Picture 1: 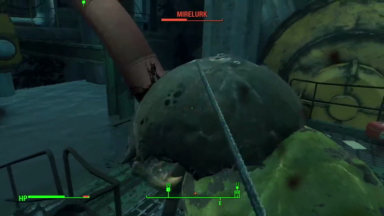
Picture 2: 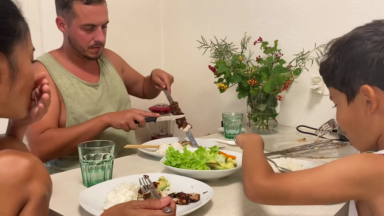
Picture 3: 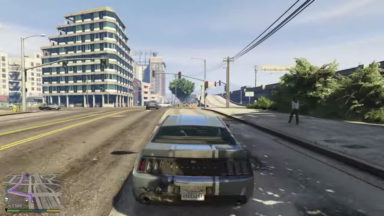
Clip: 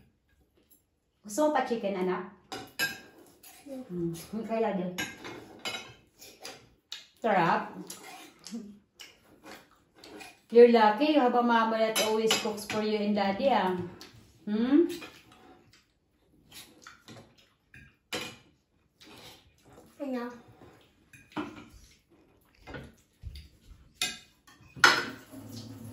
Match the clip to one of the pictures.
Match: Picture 2